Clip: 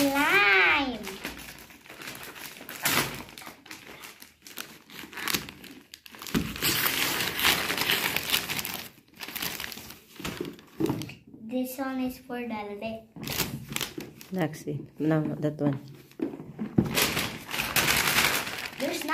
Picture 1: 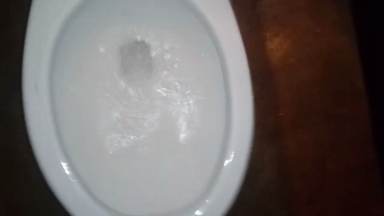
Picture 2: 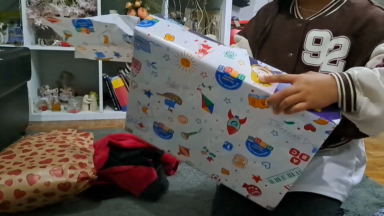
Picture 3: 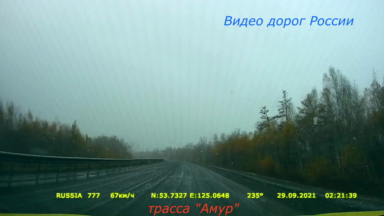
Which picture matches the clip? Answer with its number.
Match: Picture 2